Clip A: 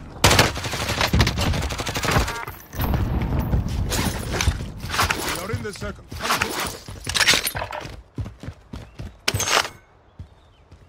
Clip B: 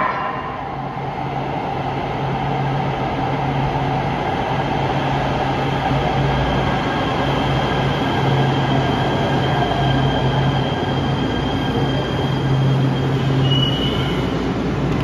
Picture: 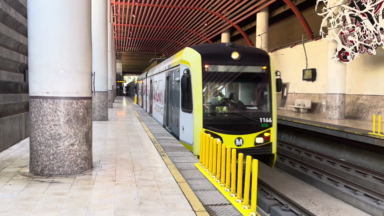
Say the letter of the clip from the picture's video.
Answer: B